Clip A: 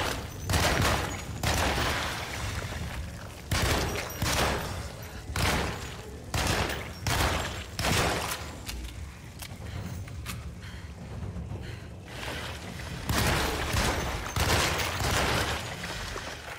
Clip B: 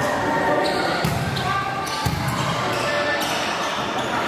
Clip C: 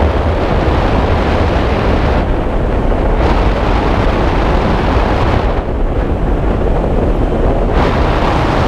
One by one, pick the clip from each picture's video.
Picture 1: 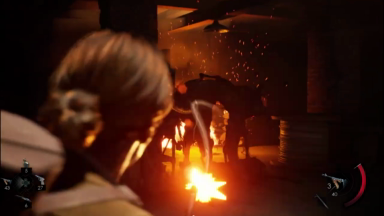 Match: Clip A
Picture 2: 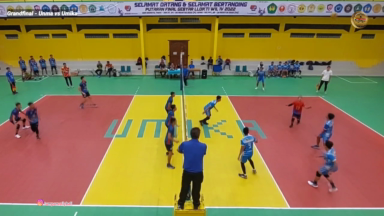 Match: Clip B